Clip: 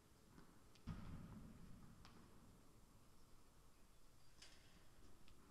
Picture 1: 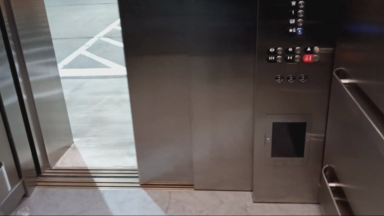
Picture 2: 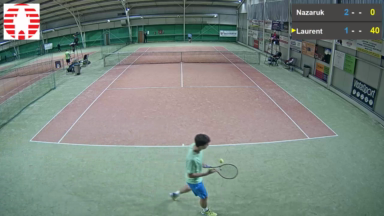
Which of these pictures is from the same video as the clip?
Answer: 2